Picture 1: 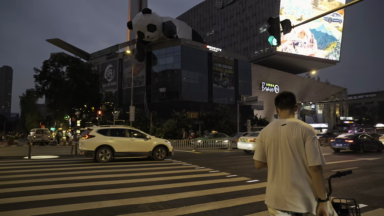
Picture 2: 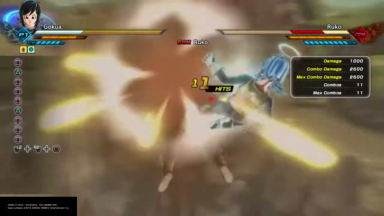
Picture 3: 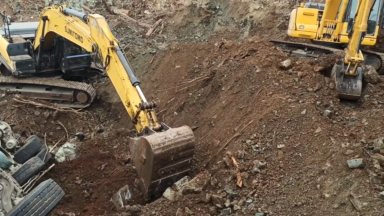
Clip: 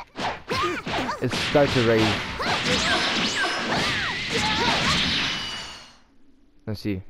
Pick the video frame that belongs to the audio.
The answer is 2